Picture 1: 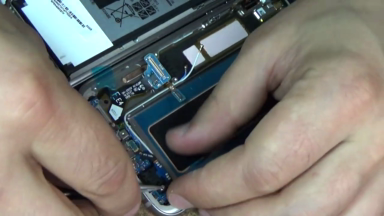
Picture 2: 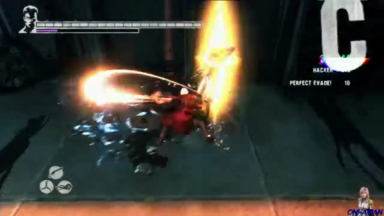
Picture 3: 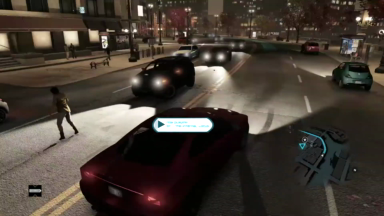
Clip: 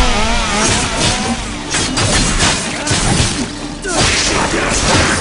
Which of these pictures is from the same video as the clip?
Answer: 2